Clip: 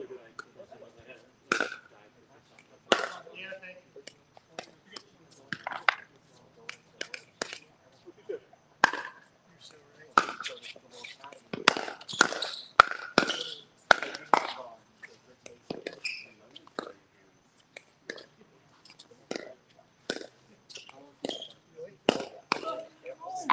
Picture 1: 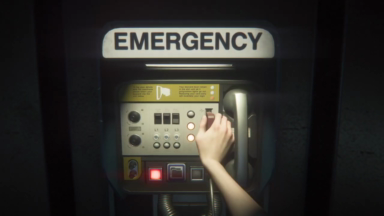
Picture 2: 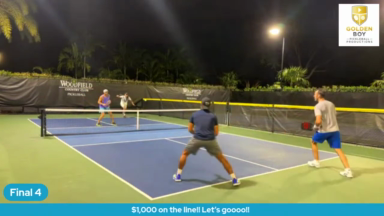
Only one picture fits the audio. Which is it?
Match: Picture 2